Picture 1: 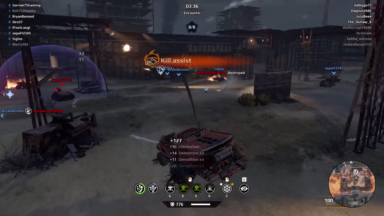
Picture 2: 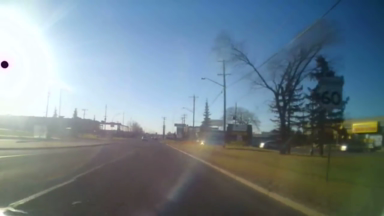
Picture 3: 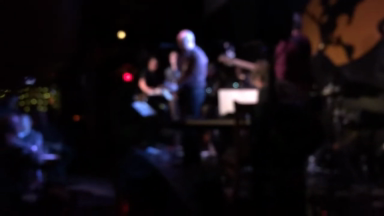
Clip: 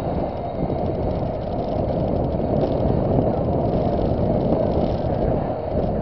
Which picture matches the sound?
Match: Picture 2